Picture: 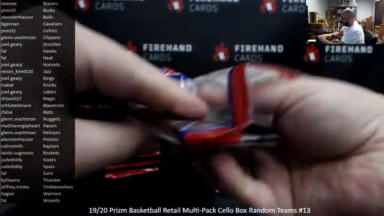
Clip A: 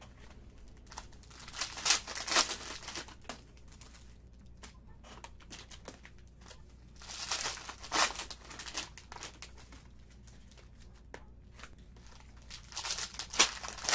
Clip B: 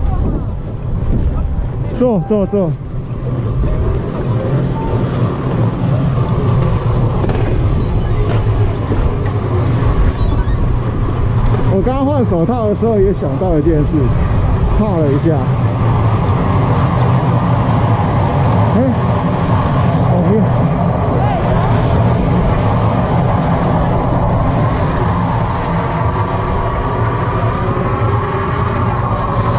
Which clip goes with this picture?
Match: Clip A